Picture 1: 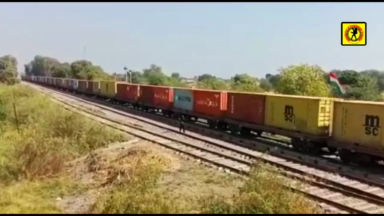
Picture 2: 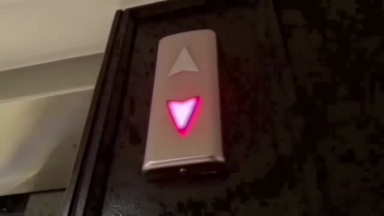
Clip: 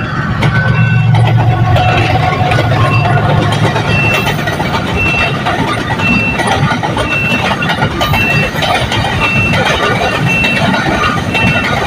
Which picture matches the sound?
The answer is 1